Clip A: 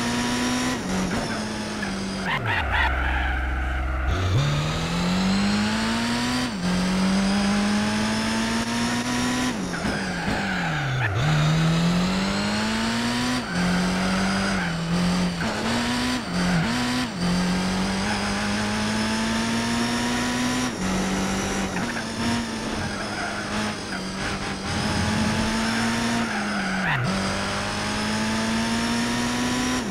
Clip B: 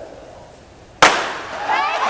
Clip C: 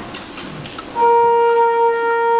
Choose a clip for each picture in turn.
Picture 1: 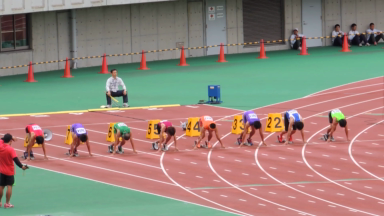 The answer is B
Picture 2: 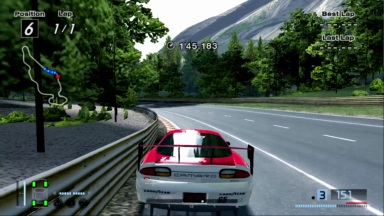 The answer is A